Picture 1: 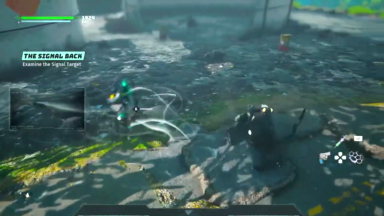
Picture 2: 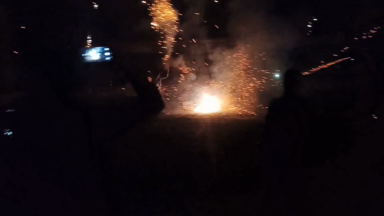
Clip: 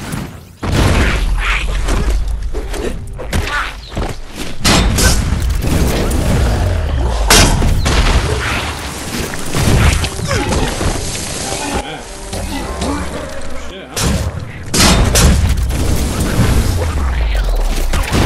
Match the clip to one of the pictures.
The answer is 1